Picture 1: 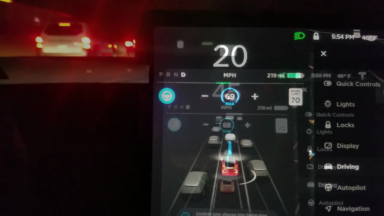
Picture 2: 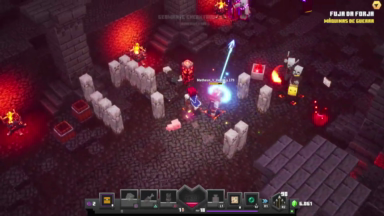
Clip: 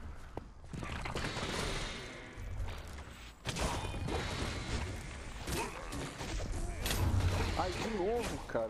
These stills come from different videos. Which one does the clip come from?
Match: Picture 2